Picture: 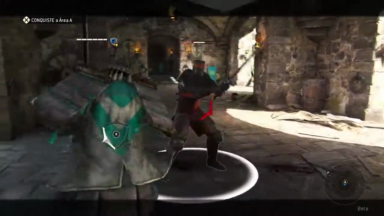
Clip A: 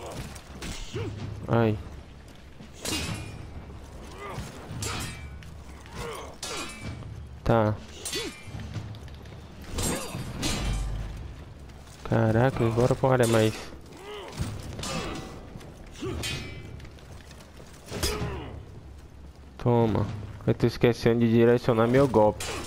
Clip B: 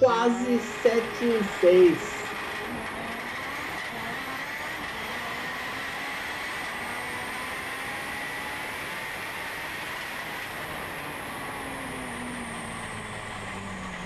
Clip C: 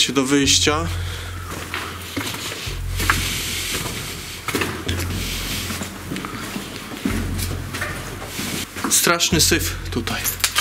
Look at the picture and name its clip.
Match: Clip A